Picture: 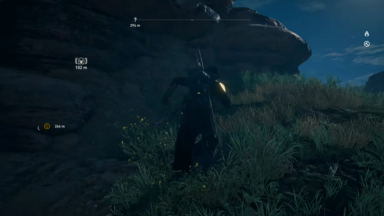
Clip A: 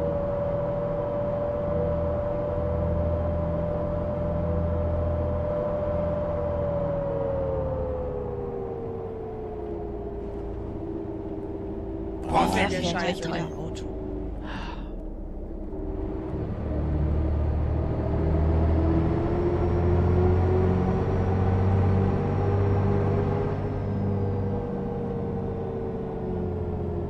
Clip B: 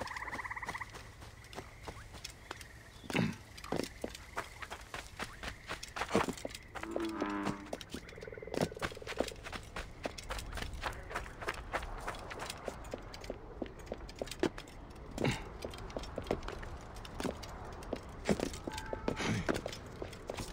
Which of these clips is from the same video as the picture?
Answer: B